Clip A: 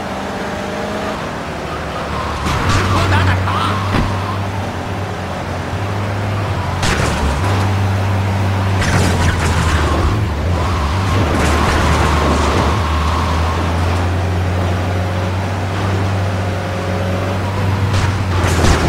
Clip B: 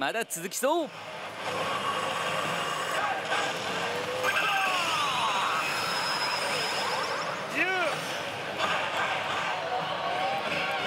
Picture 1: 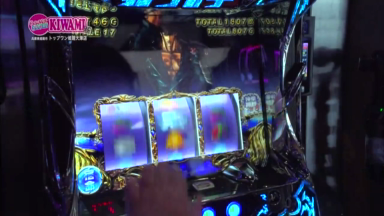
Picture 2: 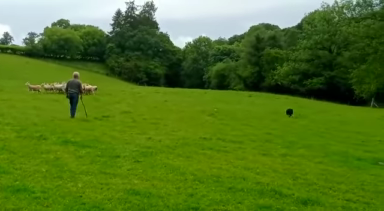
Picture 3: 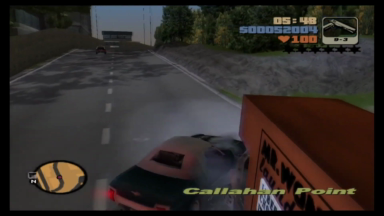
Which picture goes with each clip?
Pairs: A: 3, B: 1